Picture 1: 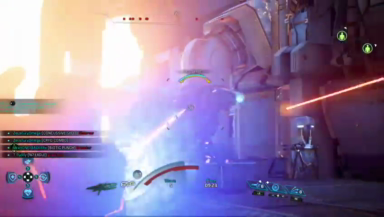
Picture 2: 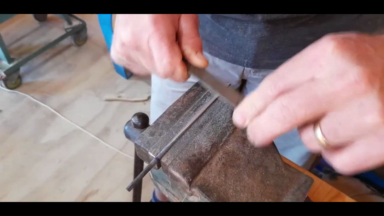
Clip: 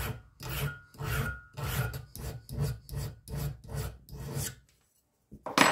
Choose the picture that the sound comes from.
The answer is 2